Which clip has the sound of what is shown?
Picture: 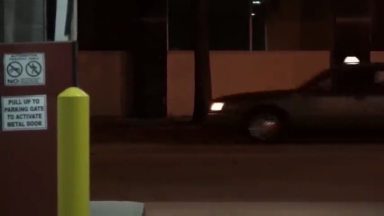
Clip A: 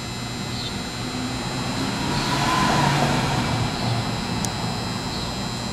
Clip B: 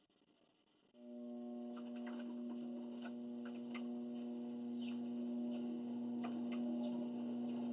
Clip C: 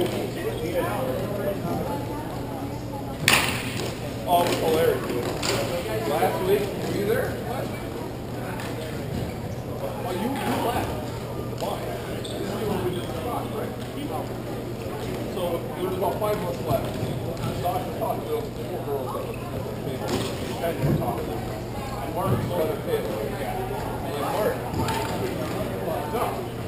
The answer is A